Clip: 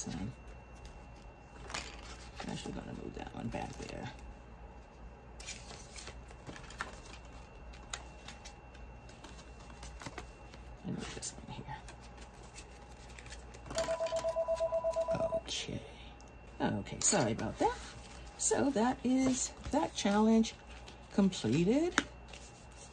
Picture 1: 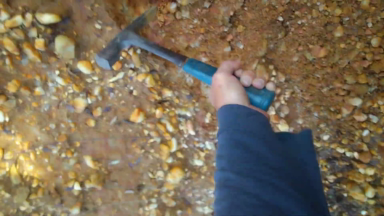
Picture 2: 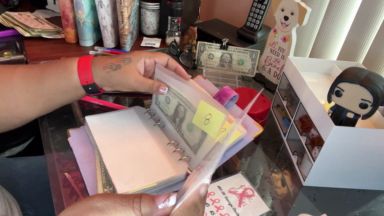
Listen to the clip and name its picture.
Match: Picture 2